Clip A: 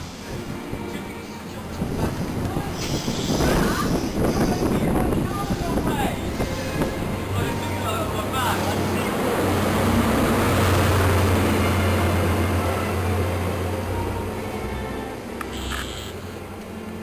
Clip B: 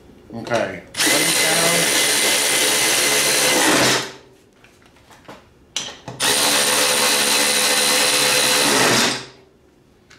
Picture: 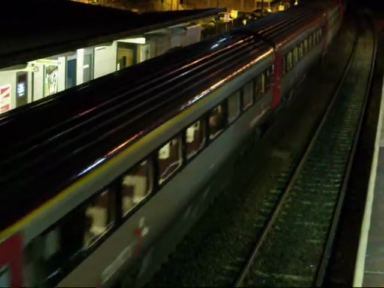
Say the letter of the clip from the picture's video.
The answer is A